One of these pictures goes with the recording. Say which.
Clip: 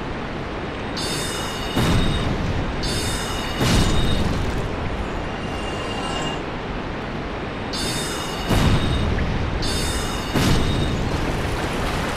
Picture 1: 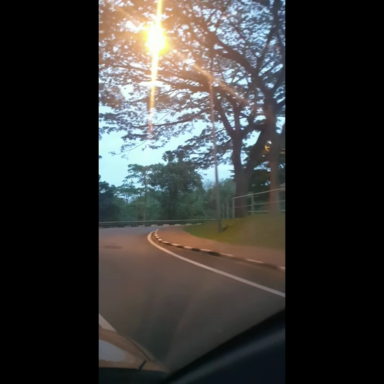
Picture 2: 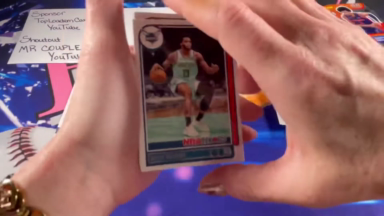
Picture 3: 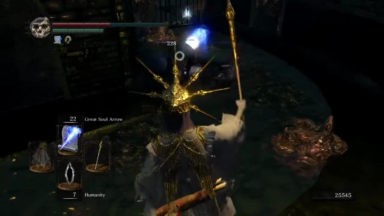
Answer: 3